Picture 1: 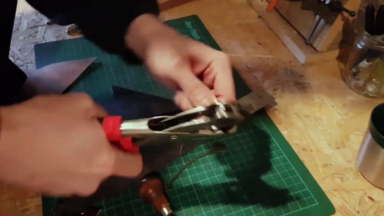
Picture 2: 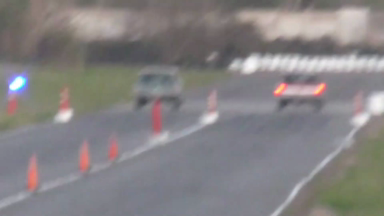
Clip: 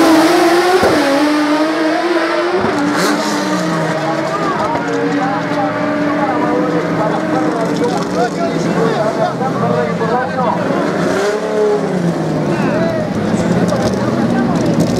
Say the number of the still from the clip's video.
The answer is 2